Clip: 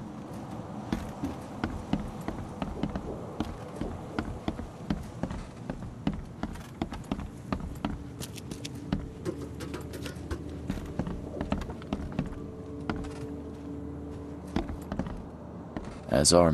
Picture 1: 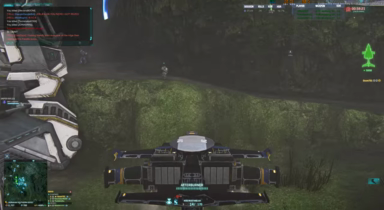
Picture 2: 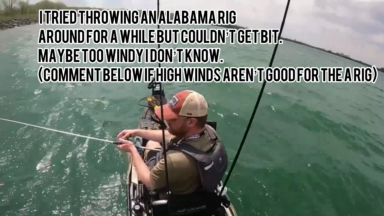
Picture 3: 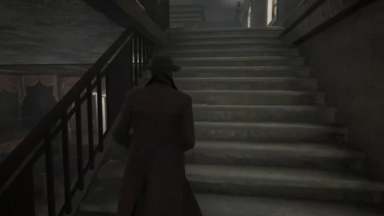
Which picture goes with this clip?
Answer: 3